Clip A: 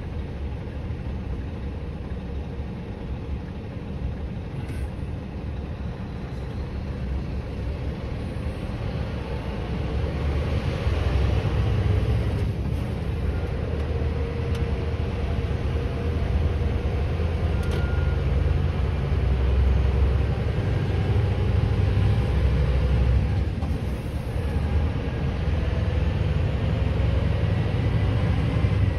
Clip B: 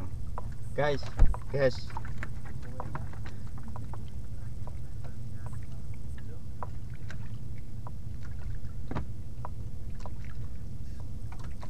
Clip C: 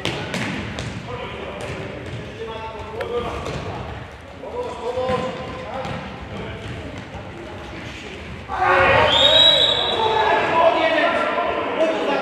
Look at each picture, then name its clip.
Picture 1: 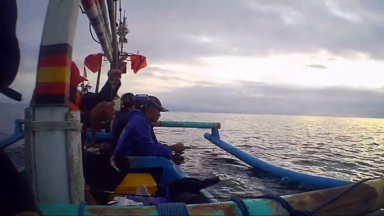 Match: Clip B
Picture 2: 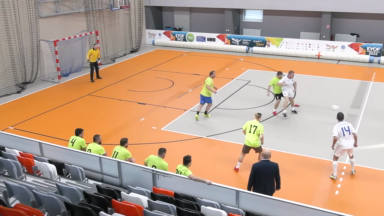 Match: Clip C